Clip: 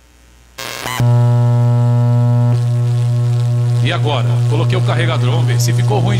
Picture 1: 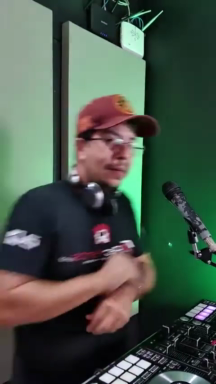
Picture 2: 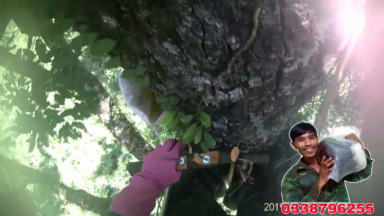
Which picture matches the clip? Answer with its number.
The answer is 1